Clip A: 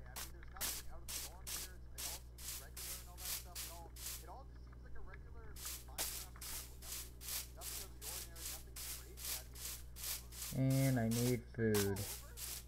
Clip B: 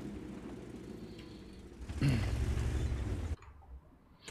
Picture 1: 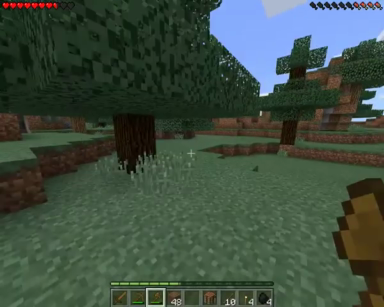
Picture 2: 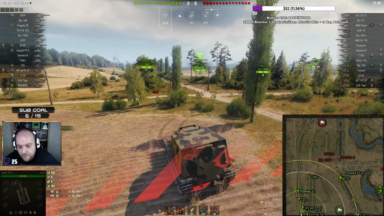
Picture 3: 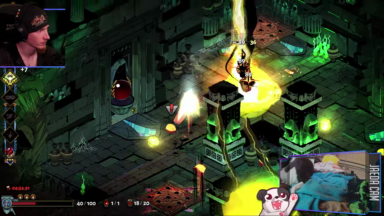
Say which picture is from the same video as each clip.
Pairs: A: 1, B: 2